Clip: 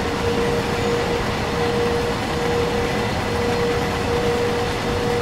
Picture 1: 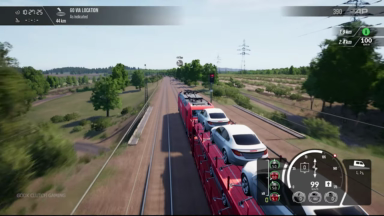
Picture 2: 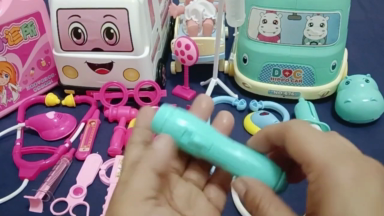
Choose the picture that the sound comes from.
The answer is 1